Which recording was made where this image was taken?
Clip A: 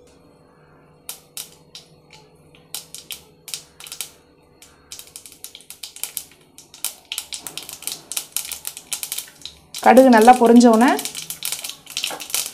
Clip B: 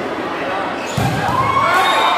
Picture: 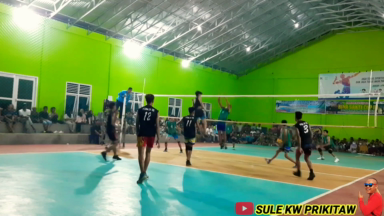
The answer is B